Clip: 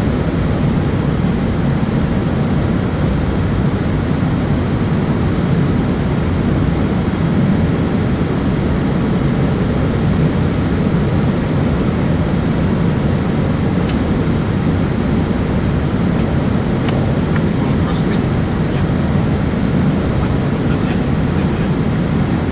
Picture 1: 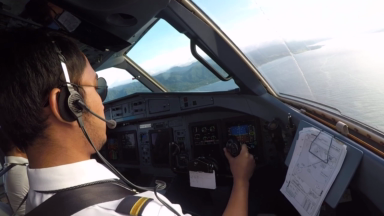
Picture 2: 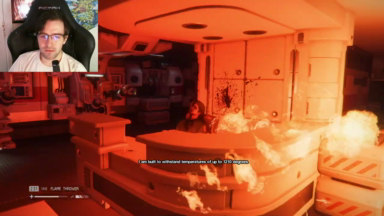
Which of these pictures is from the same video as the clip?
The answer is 1